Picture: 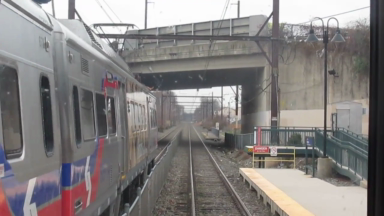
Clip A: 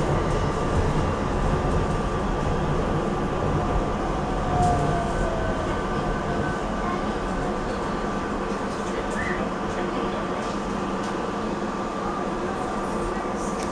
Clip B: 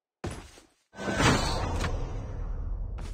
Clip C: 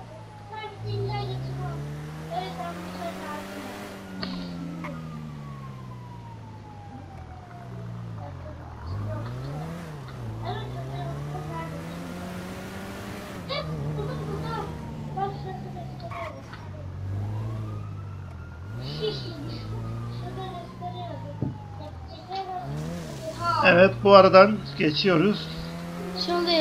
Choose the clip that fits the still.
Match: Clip A